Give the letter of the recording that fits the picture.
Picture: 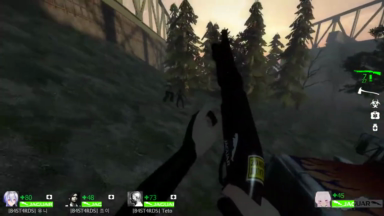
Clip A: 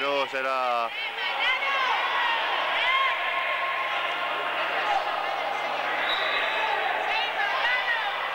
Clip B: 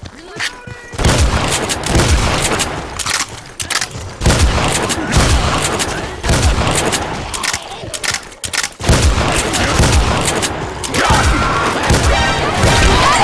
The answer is B